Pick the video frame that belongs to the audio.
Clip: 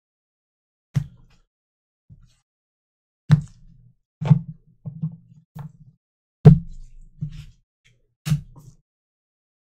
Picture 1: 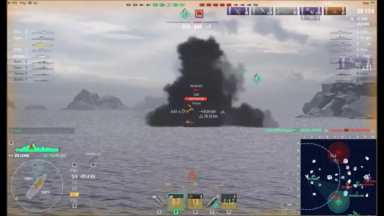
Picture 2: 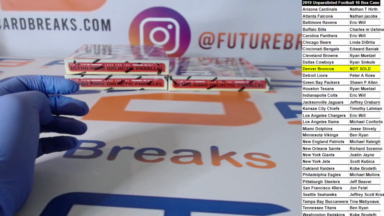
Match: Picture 2